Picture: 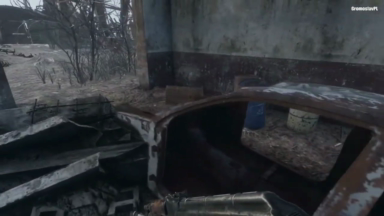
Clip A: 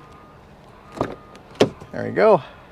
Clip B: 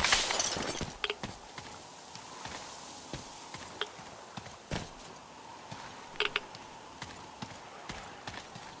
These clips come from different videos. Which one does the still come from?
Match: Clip B